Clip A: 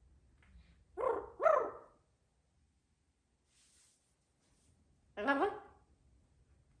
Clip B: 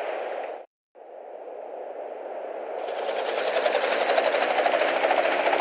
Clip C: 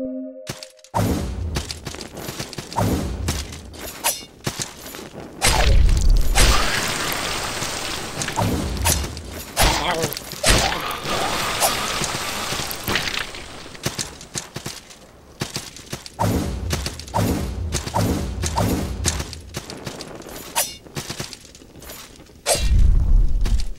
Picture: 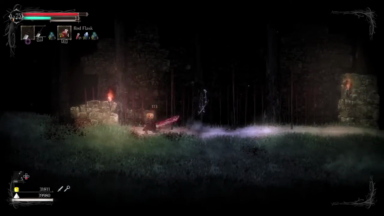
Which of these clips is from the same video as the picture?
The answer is C